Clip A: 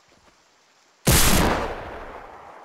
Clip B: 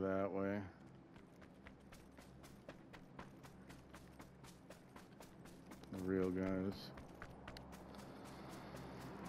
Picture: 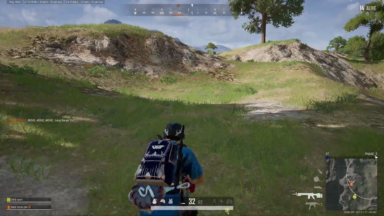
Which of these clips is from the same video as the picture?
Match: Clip B